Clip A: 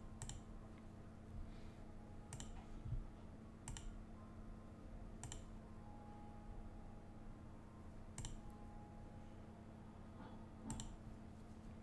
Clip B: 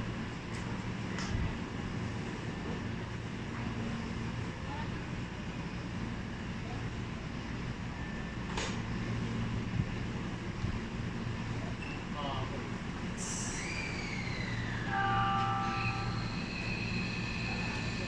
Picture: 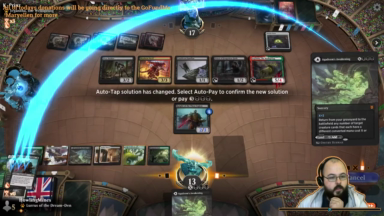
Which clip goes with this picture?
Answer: A